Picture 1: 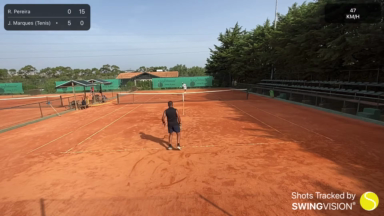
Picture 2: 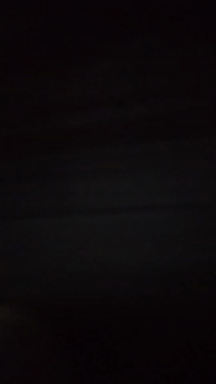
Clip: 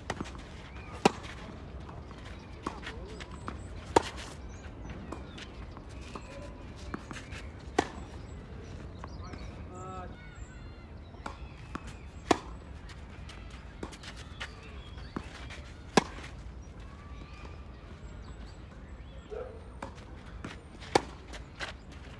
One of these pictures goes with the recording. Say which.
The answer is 1